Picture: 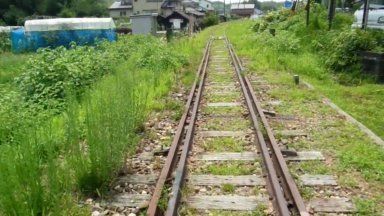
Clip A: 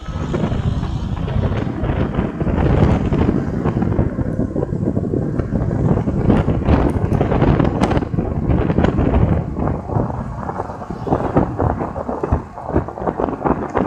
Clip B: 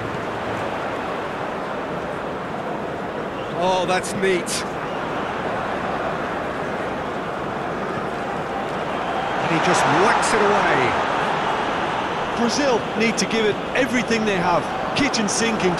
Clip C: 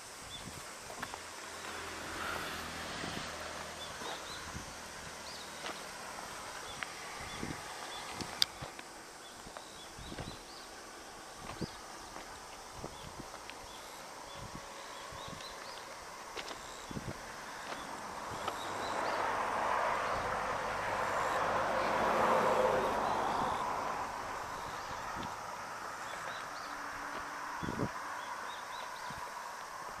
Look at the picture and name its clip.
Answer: C